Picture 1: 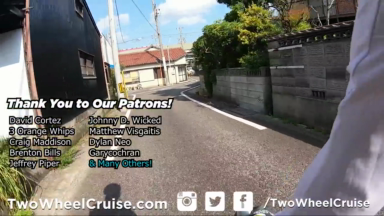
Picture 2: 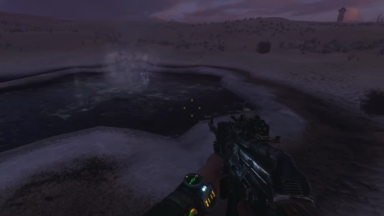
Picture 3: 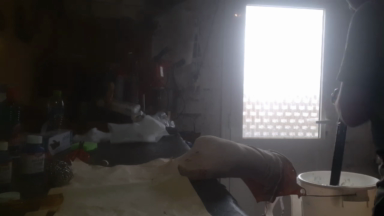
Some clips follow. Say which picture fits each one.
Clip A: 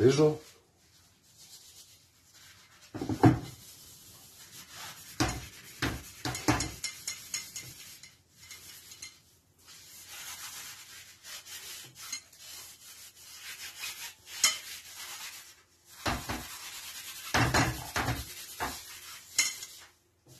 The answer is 3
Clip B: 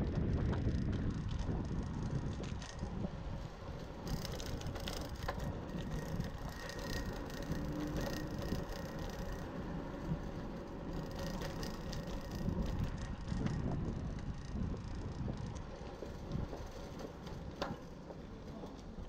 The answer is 1